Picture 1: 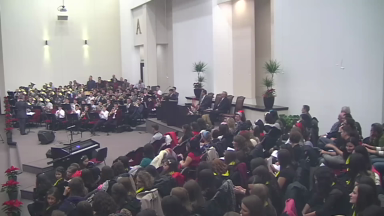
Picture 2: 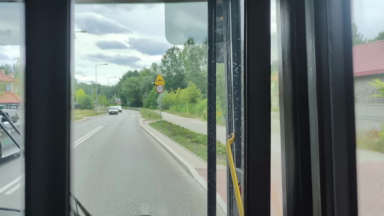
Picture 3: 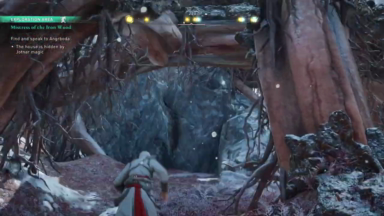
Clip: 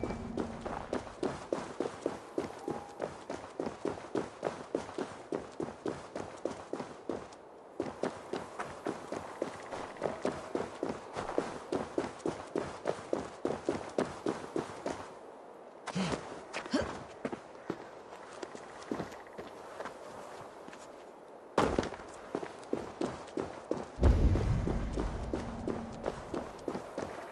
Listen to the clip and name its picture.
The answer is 3